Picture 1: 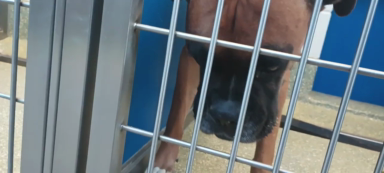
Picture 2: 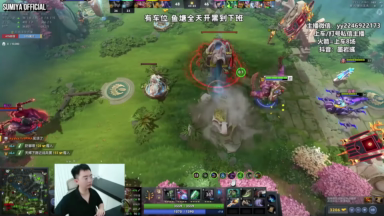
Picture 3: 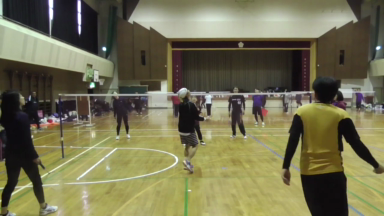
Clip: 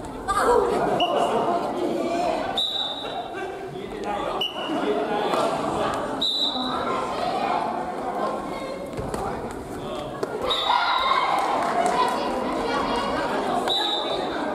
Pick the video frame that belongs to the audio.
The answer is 3